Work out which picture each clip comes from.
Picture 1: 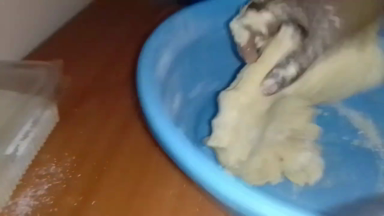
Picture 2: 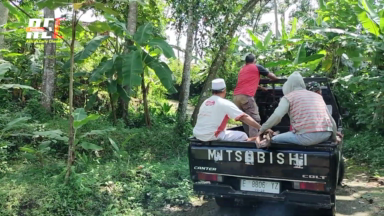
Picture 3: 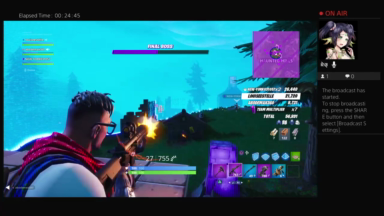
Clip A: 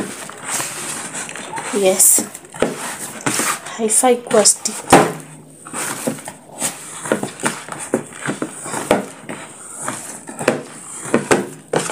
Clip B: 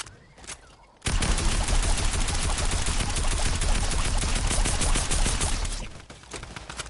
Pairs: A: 1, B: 3